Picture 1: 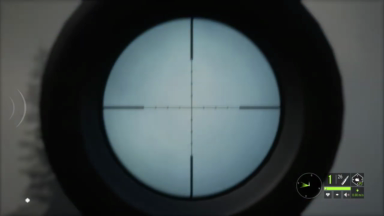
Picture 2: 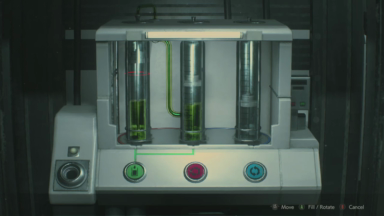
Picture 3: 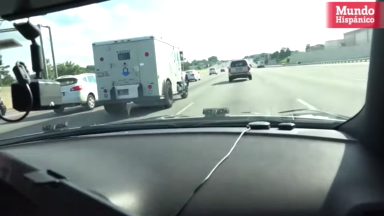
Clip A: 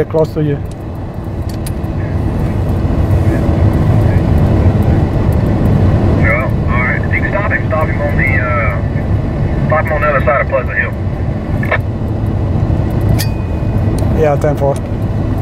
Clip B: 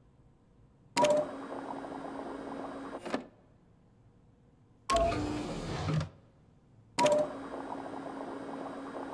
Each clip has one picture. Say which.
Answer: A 3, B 2